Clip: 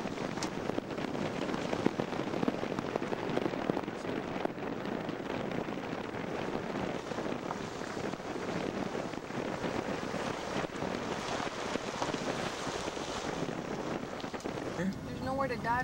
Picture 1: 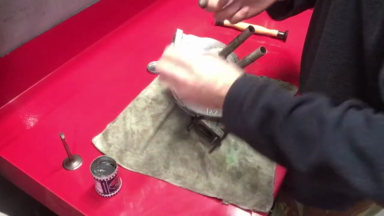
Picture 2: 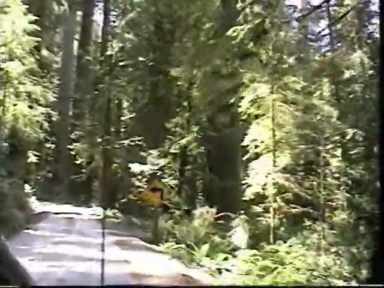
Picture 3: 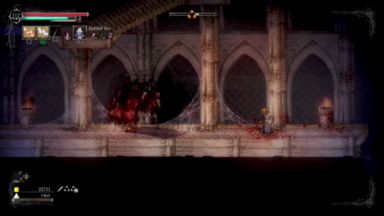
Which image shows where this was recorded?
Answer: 2